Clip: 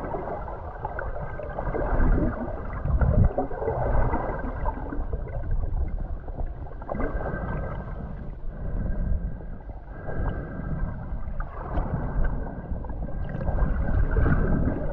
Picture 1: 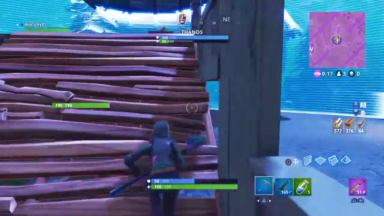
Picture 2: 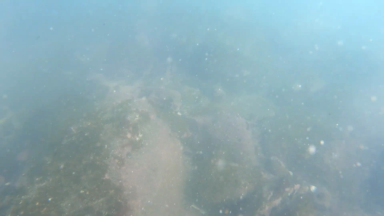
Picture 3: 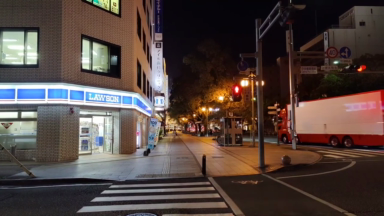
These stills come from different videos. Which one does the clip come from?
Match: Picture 2